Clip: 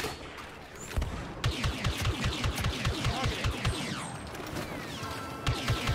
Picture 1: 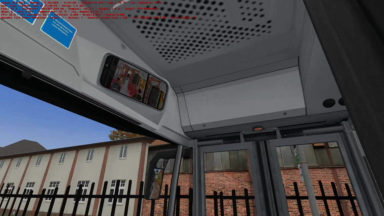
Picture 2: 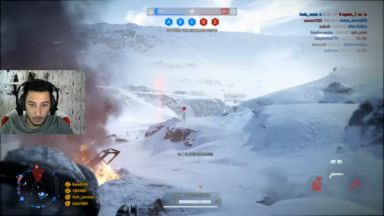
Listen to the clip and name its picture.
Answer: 2